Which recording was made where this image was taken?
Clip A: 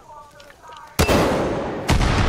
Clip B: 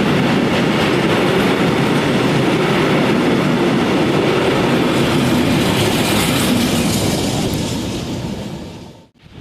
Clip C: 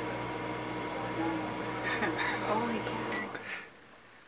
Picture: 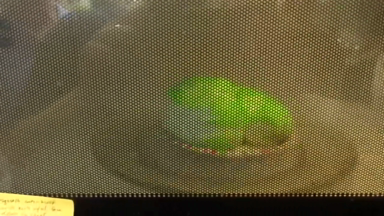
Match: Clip C